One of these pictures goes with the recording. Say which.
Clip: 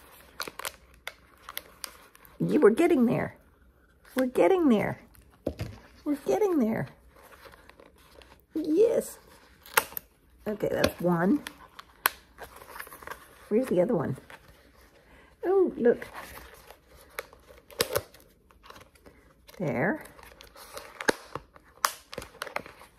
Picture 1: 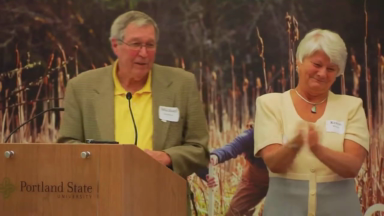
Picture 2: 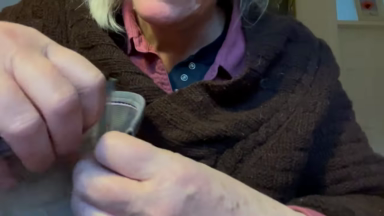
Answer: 2